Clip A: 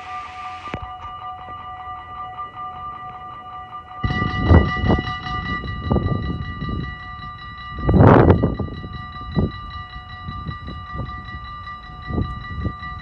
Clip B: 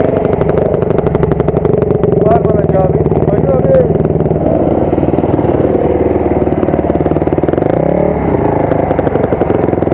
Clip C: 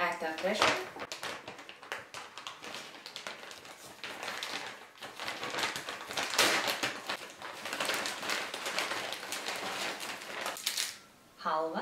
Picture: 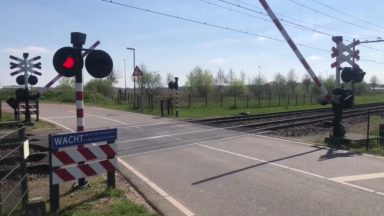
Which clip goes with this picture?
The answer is A